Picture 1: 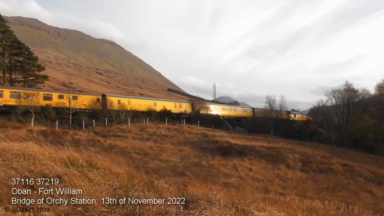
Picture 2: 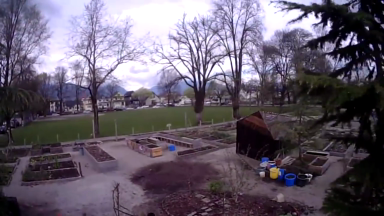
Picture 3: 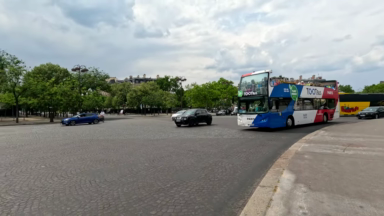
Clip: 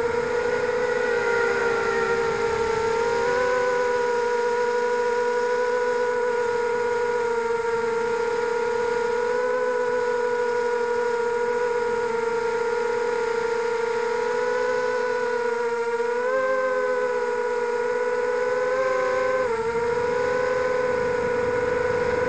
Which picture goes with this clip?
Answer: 2